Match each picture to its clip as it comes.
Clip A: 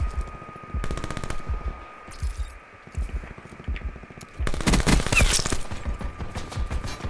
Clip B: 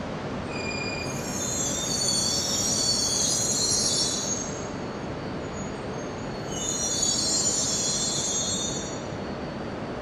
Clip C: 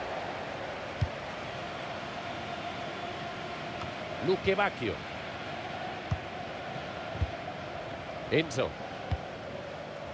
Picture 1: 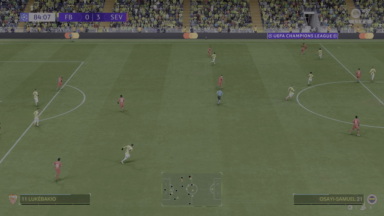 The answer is C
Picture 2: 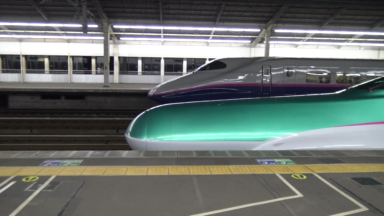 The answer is B